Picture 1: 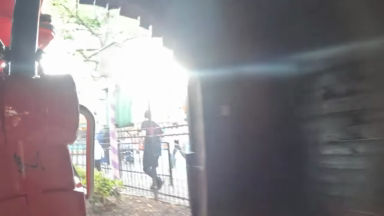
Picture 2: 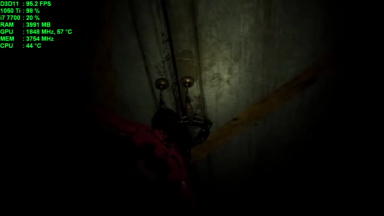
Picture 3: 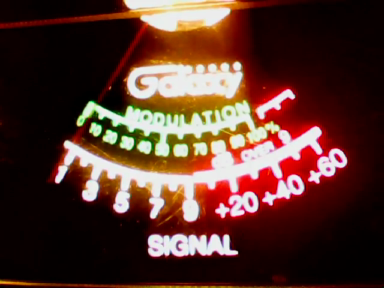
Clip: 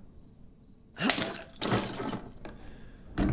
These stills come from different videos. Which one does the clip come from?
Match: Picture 2